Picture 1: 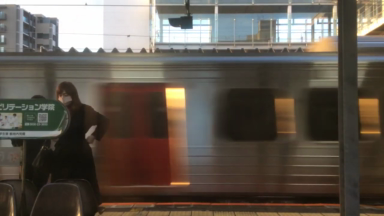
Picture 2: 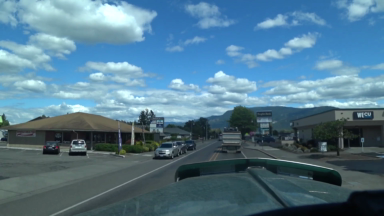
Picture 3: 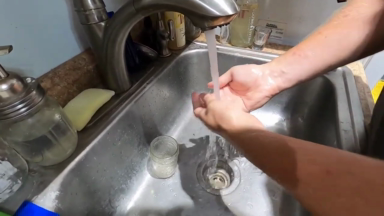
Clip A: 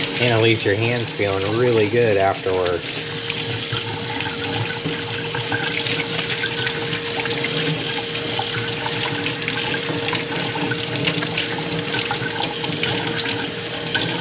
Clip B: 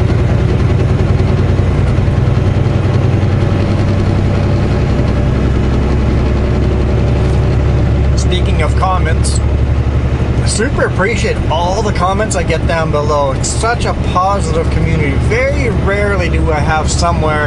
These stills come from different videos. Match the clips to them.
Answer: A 3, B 2